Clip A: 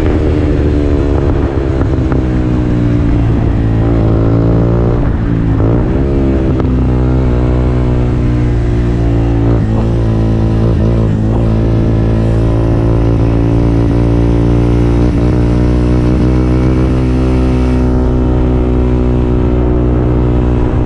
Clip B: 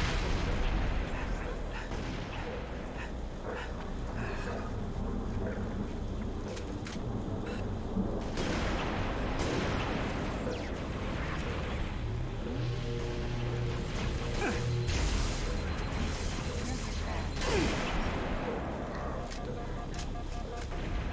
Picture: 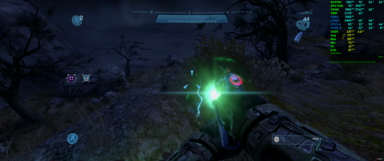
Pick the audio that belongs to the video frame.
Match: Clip B